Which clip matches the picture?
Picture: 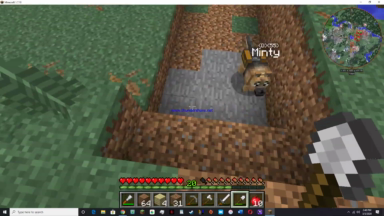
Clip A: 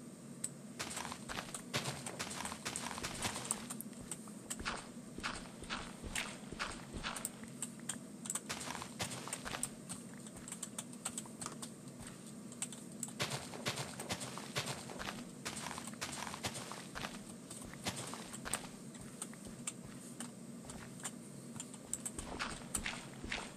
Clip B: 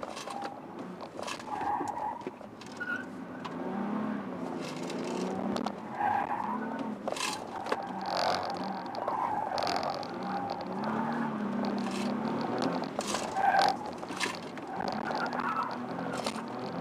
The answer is A